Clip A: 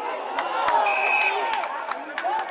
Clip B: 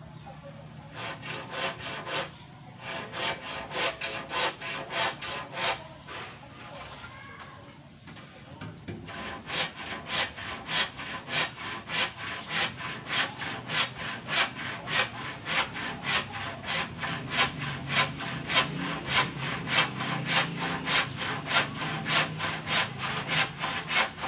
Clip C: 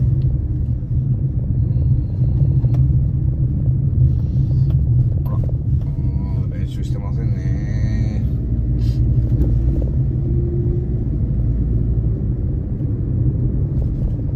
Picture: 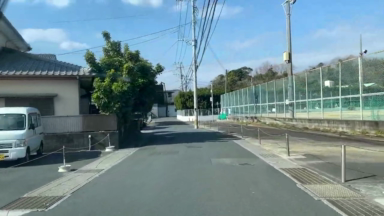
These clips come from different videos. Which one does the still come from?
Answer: C